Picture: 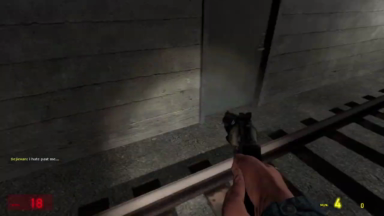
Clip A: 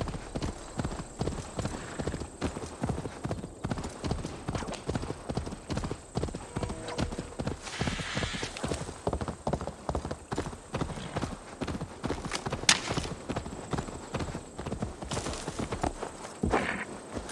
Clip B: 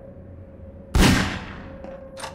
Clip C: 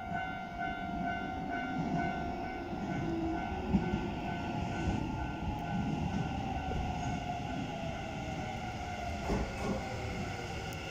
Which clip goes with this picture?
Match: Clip B